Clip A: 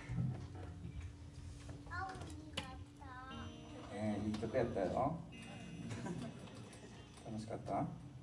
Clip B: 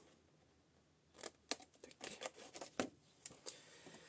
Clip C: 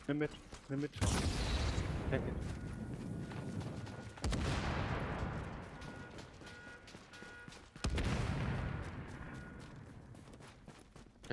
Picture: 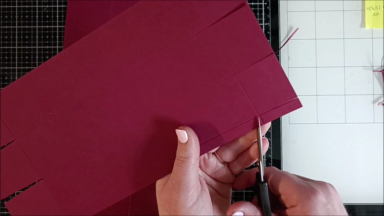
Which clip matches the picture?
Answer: B